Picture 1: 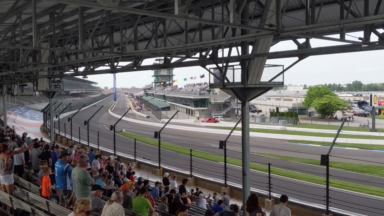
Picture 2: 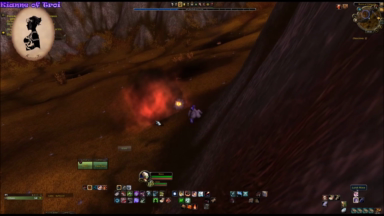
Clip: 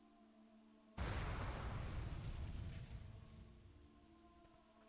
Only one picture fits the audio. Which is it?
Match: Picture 2